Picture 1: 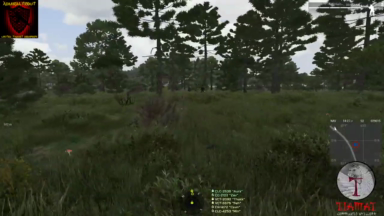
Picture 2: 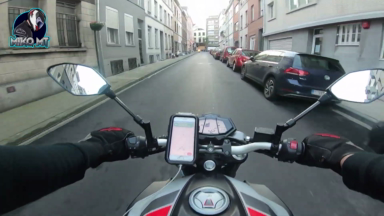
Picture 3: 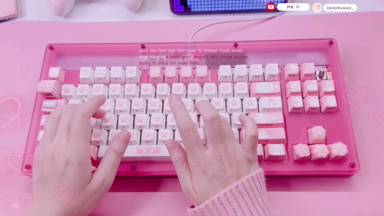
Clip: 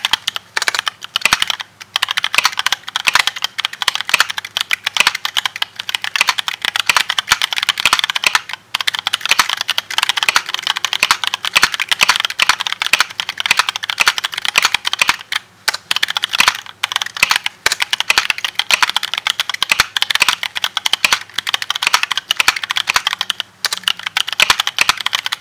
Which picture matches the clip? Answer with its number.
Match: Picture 3